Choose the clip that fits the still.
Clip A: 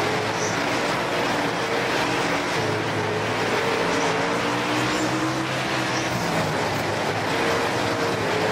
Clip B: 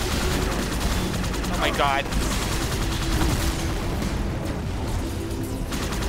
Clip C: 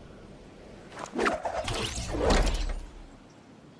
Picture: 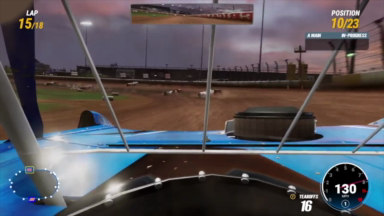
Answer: A